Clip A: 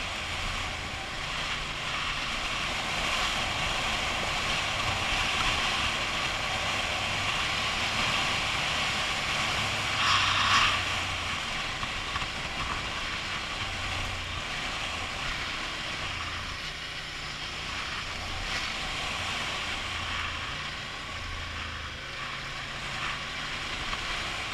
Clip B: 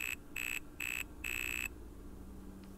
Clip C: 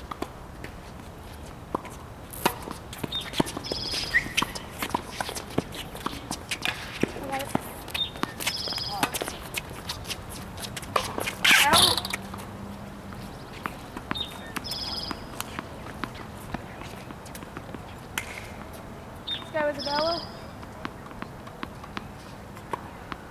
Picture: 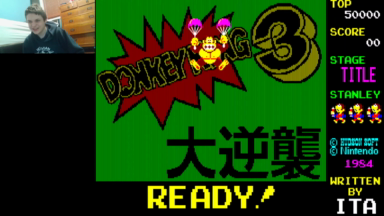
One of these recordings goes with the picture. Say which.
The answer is B